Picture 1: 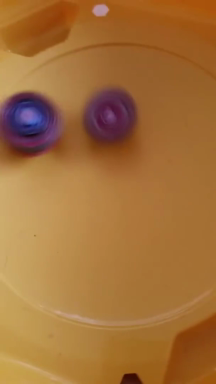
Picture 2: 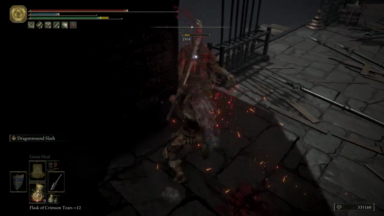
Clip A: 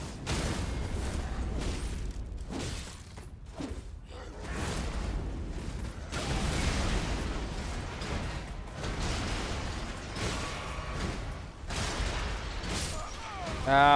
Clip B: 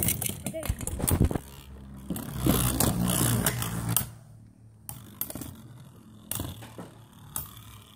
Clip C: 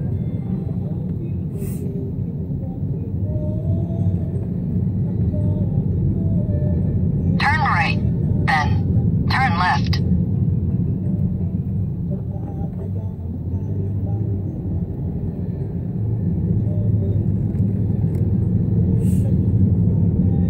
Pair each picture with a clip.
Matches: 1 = B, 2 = A